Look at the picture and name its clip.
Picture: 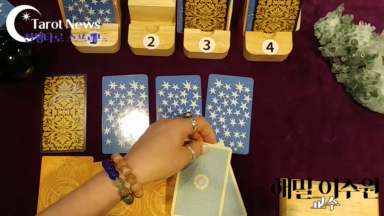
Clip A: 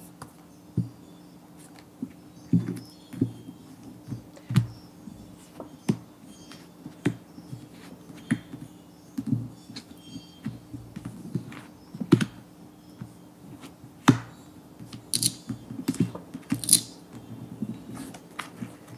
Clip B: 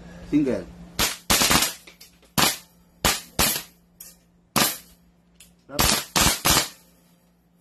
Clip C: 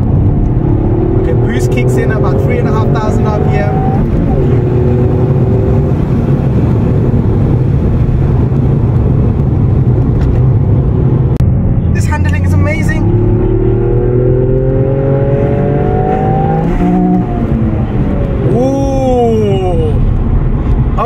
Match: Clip A